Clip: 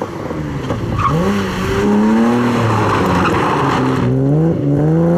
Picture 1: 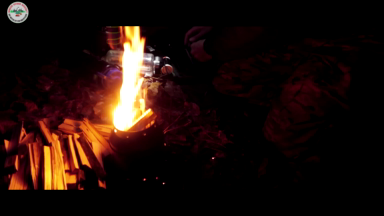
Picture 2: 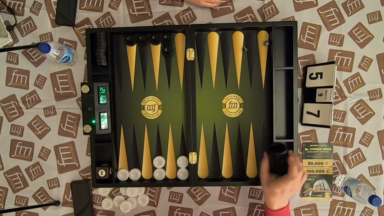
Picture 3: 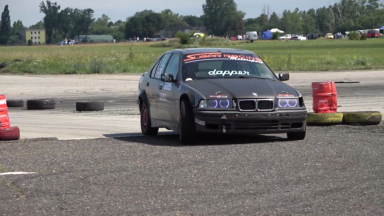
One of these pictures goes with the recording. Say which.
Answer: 3